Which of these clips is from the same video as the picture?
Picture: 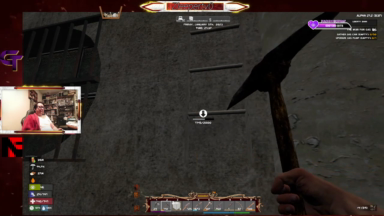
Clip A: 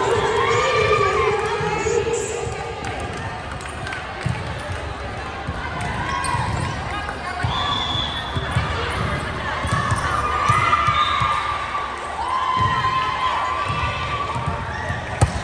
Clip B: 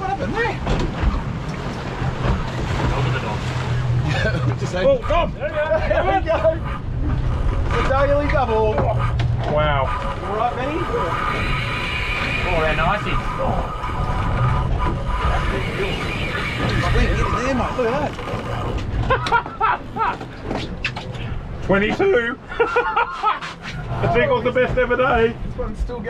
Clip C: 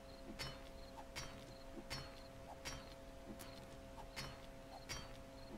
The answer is C